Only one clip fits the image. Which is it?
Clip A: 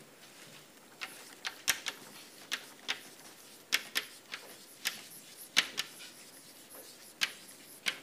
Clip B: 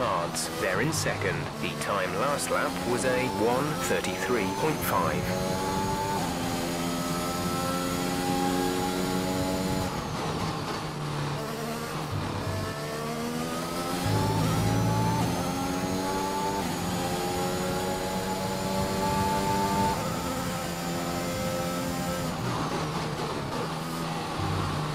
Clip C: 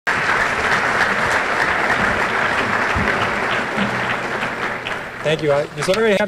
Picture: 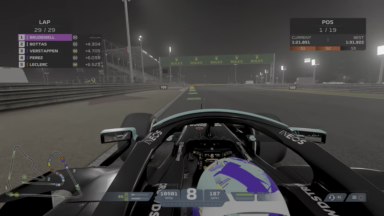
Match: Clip B